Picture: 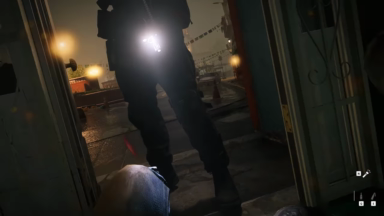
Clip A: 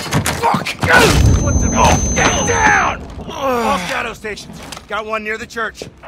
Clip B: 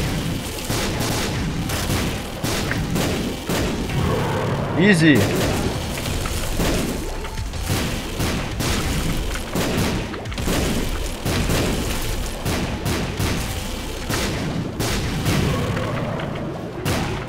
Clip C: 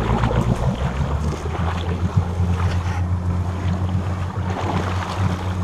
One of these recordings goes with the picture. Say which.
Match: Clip A